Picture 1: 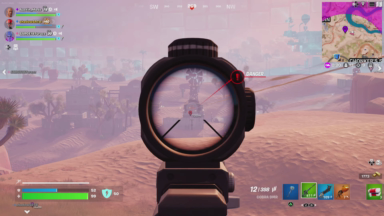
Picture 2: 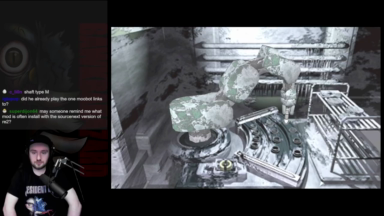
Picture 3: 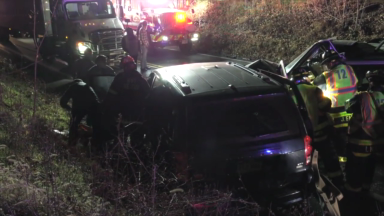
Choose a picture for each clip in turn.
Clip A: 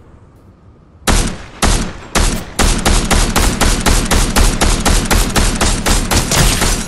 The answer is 1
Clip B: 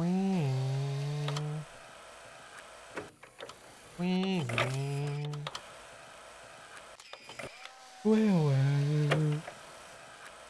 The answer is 2